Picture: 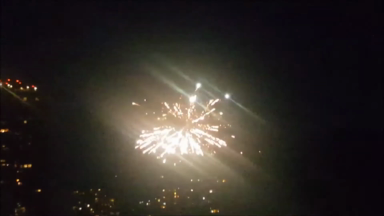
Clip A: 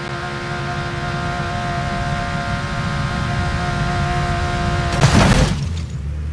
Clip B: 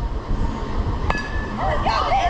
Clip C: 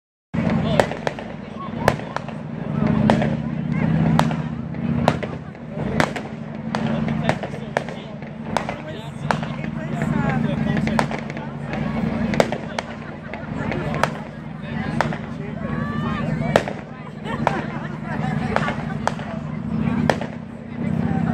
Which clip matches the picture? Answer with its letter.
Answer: C